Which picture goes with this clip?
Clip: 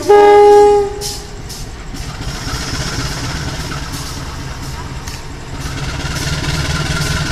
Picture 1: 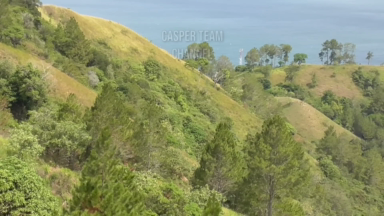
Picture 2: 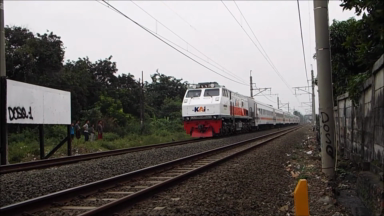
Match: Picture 2